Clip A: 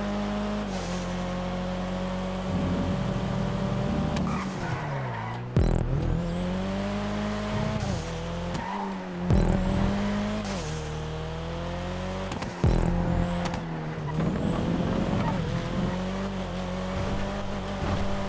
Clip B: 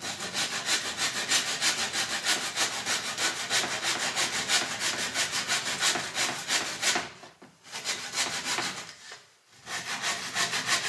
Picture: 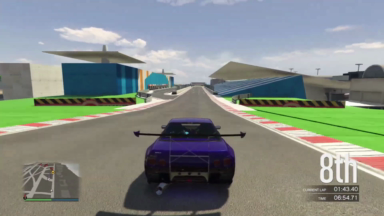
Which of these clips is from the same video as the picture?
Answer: A